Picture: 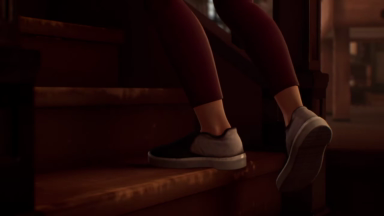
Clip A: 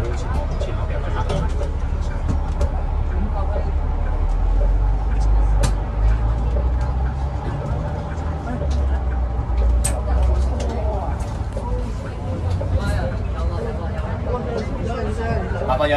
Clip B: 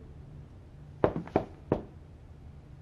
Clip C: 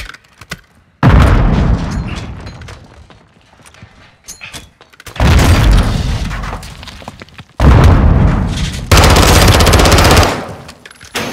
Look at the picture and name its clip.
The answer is B